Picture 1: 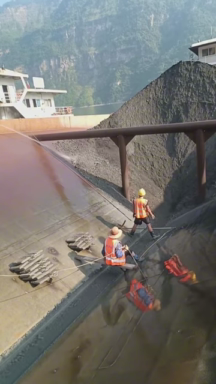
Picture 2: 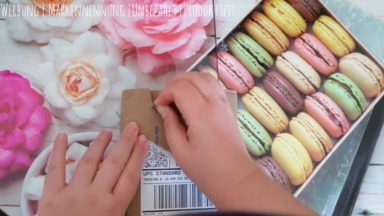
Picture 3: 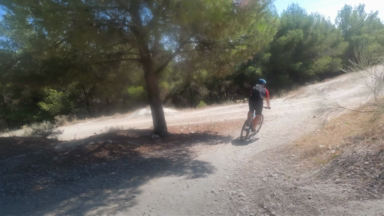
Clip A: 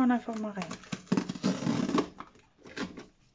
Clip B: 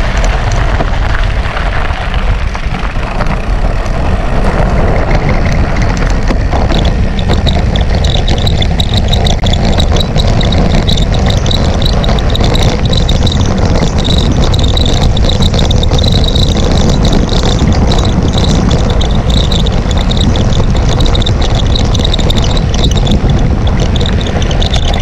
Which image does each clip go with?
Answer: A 2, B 3